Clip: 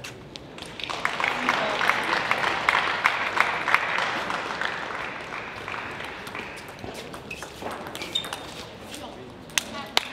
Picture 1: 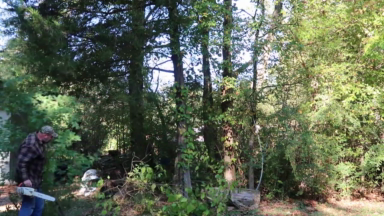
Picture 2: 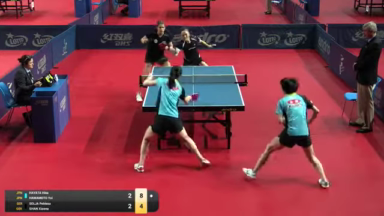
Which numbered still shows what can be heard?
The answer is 2